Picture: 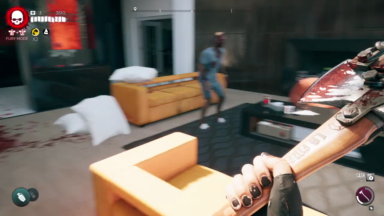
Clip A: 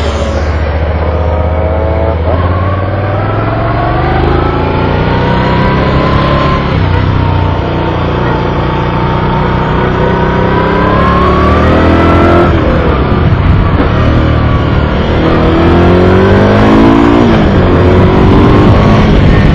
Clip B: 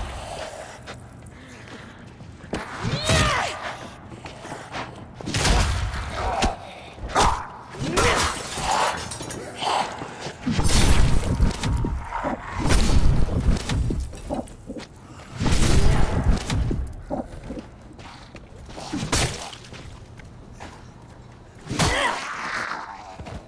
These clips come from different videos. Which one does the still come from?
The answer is B